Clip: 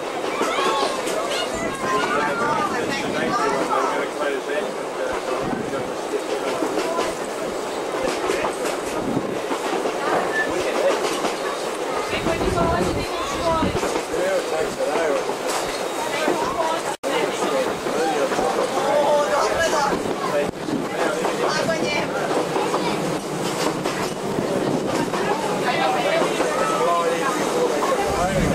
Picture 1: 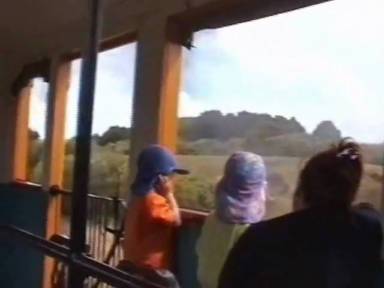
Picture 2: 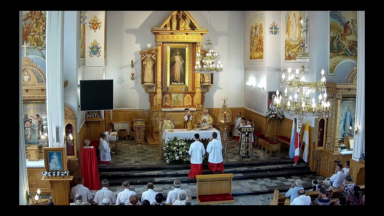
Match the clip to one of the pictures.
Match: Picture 1